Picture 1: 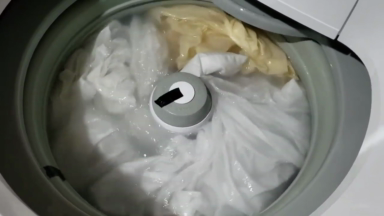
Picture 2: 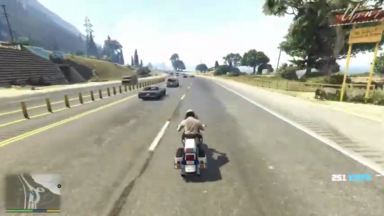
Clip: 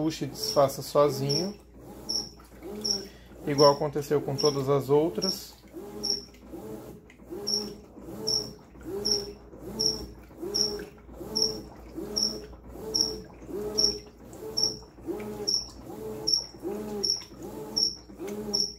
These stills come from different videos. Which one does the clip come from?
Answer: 1